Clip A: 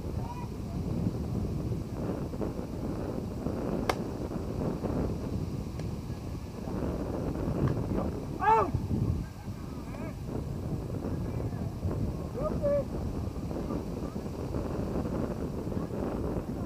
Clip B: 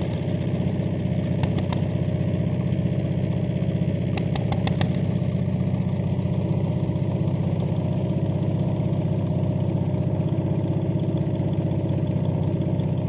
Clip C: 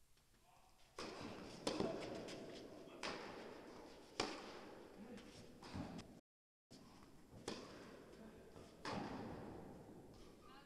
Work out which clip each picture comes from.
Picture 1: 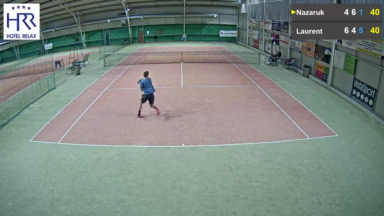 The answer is C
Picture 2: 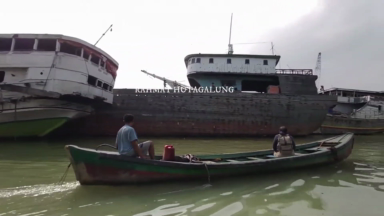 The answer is B